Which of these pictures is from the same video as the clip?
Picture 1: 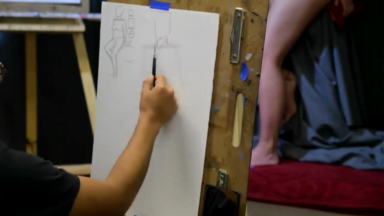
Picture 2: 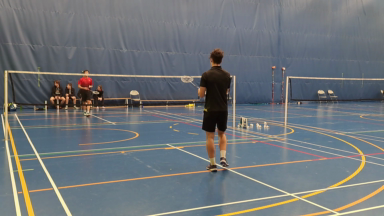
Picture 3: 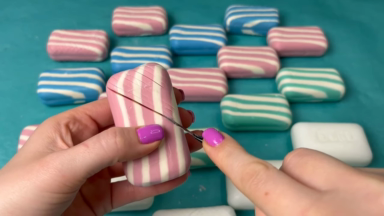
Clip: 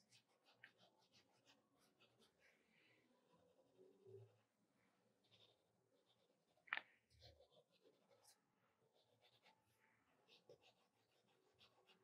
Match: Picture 1